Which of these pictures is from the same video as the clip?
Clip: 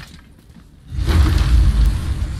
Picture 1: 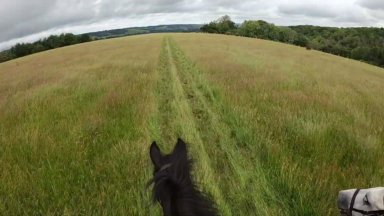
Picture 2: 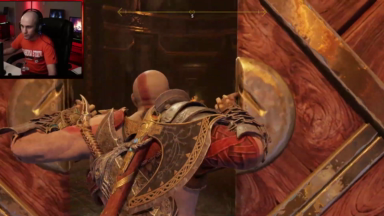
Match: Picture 2